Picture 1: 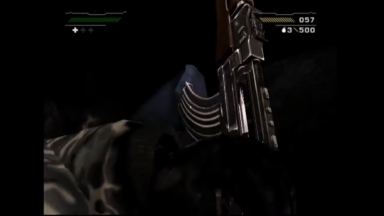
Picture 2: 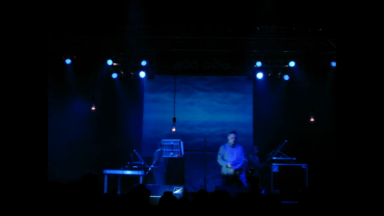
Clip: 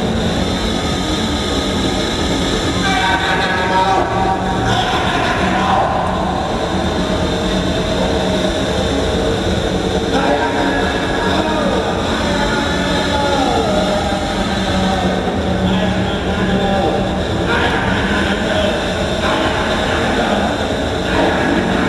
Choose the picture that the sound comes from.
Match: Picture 2